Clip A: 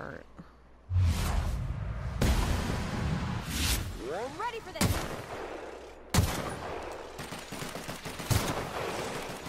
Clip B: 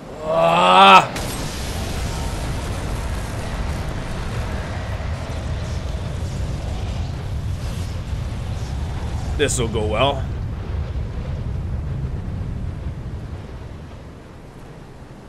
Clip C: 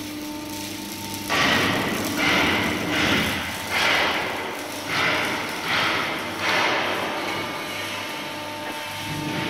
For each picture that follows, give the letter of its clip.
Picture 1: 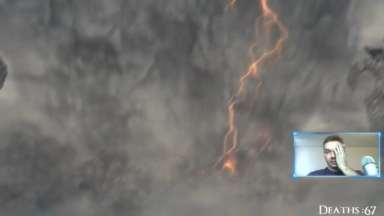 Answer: B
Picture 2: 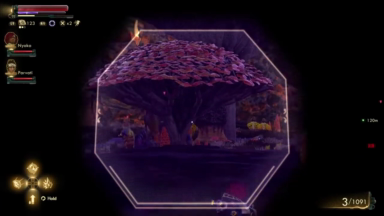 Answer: A